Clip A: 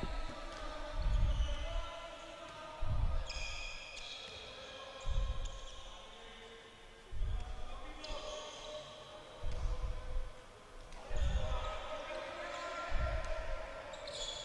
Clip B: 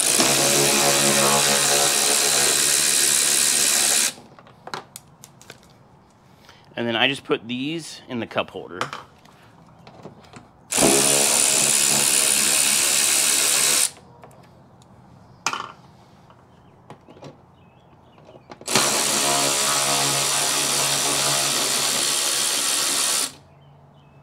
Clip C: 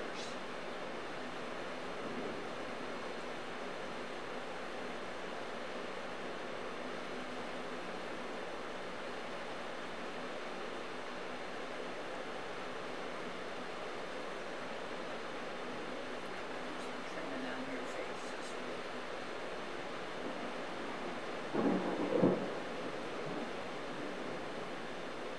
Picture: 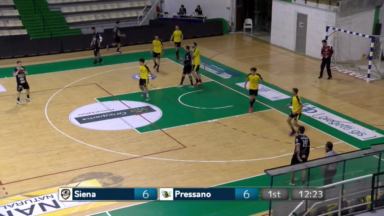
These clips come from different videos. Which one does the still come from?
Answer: A